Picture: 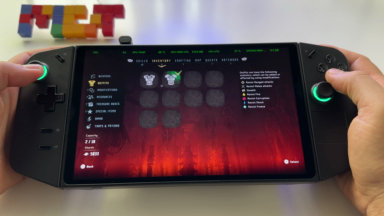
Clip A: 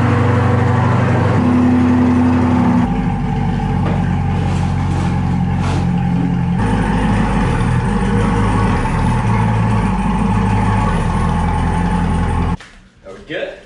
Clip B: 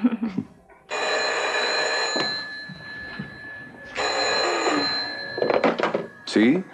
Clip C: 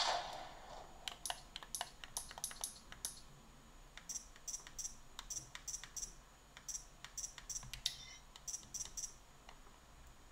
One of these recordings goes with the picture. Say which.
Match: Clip C